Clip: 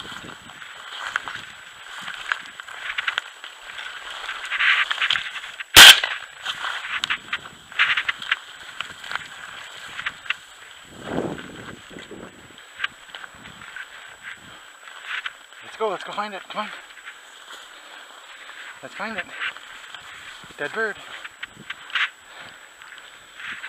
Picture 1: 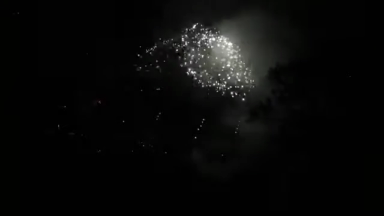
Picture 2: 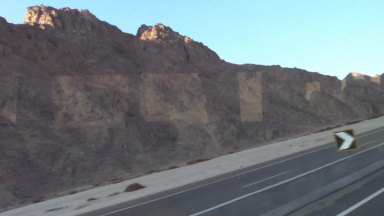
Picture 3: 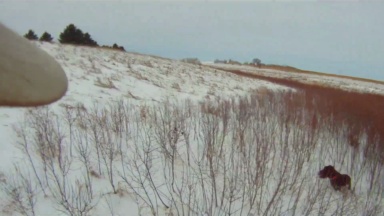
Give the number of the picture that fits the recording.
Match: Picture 3